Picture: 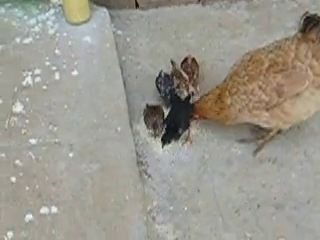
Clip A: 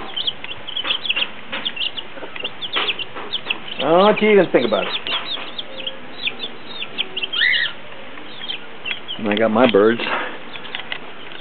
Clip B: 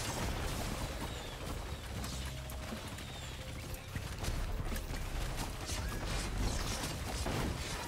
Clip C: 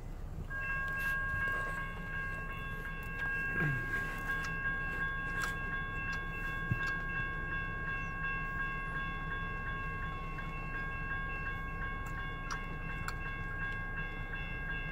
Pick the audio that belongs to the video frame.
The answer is A